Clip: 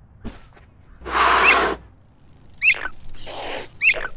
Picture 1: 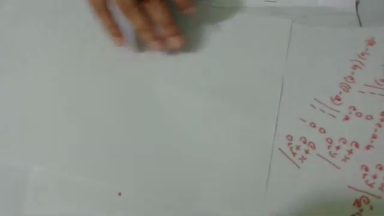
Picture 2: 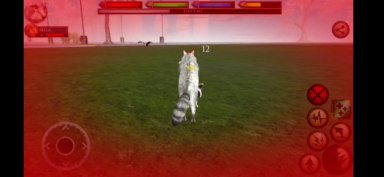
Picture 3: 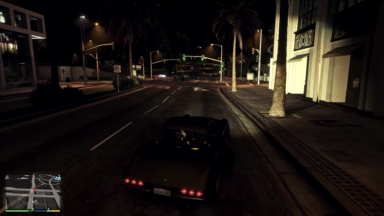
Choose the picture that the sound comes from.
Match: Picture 2